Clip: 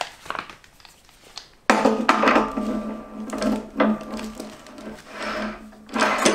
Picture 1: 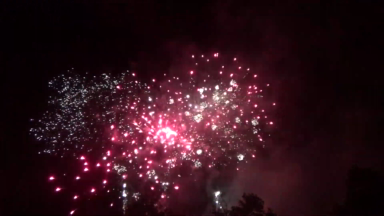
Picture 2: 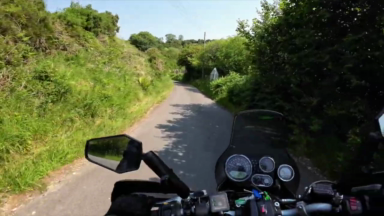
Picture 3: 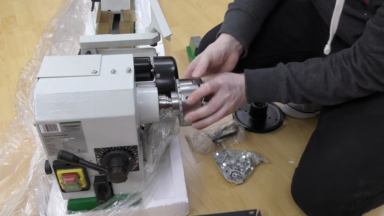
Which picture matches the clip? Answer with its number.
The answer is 3